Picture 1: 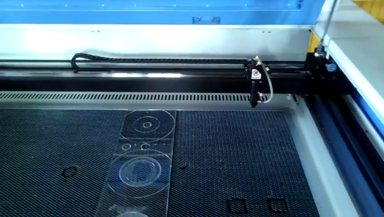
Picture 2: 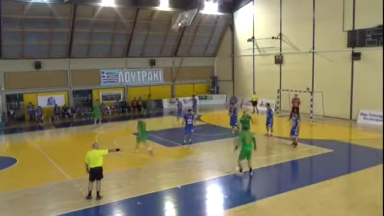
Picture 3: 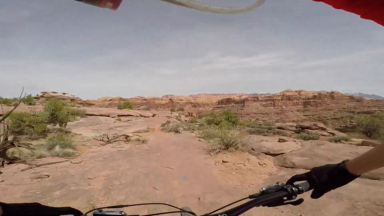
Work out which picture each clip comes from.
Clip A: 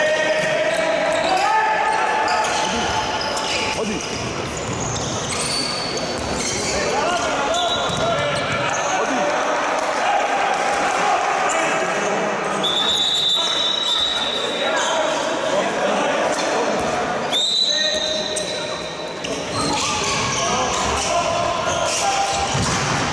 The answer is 2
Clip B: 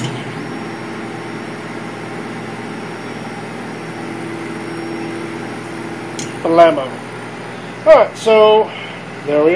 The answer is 1